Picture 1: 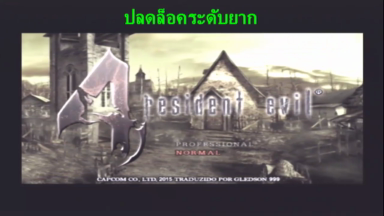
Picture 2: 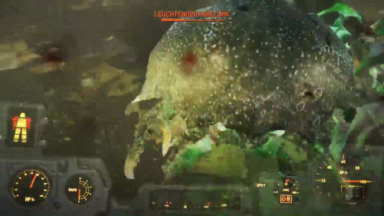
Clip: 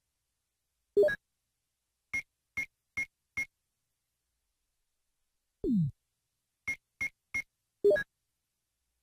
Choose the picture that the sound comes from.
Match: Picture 1